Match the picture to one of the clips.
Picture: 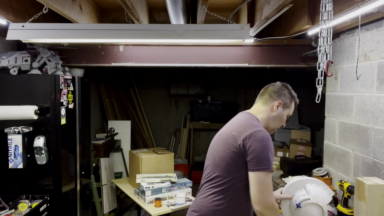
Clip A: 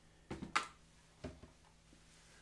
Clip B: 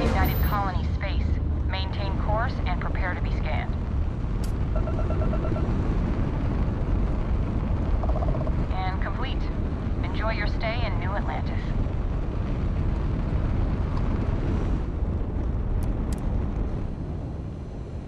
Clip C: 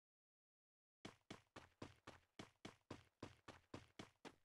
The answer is A